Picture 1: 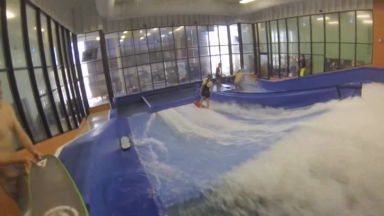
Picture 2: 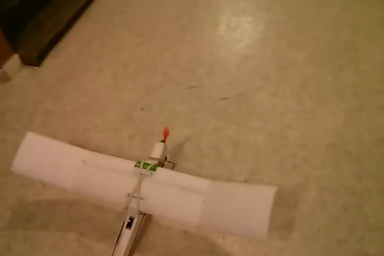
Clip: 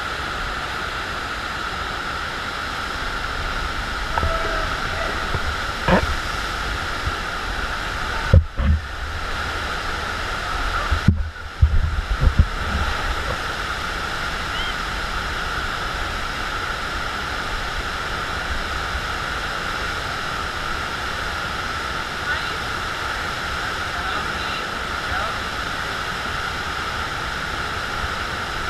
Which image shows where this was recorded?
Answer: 1